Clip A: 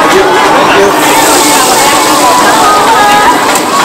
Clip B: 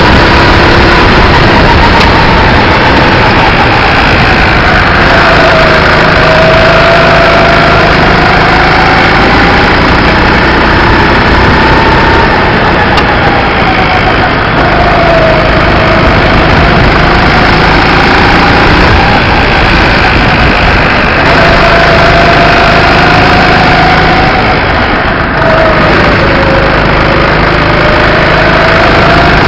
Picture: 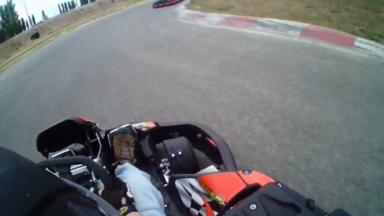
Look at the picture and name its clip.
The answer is B